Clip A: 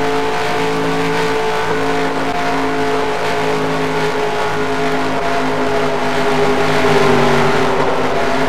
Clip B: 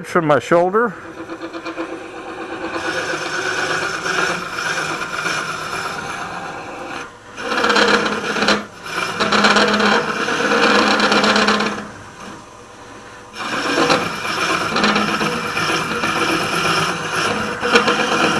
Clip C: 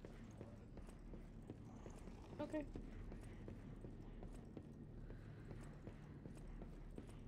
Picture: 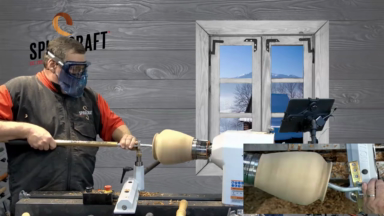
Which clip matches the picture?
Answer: B